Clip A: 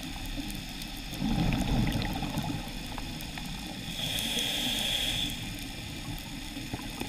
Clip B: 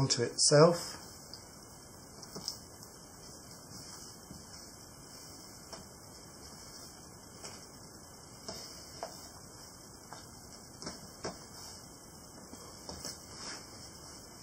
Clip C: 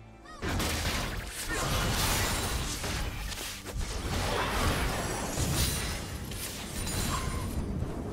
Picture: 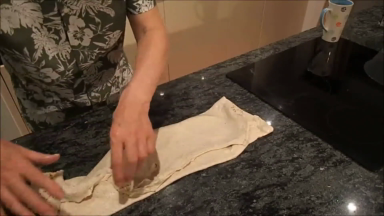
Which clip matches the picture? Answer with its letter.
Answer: B